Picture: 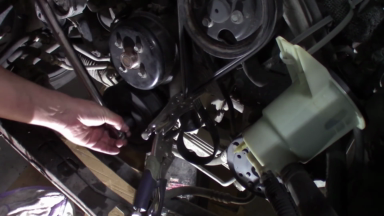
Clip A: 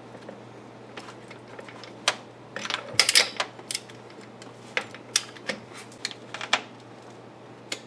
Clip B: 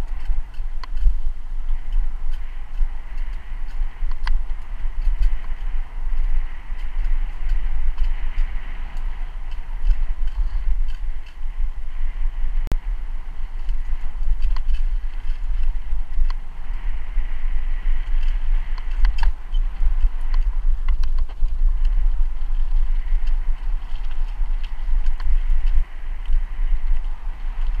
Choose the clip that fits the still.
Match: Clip A